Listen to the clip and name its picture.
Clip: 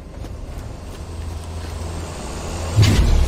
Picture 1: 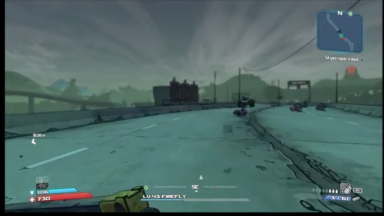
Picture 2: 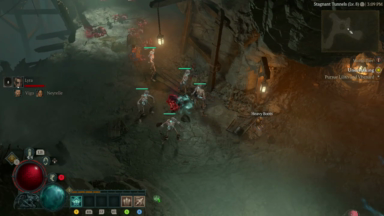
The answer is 1